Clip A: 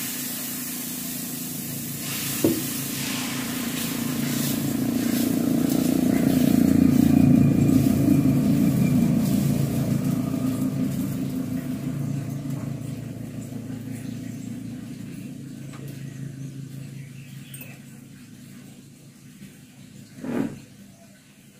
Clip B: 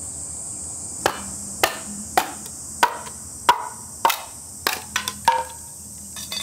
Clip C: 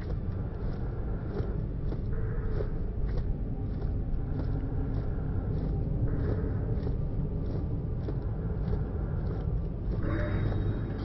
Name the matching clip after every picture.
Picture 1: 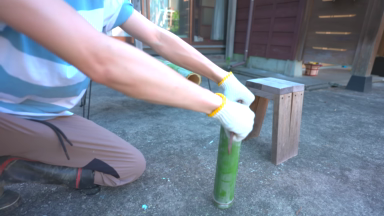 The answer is B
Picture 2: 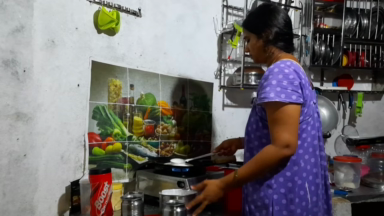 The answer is A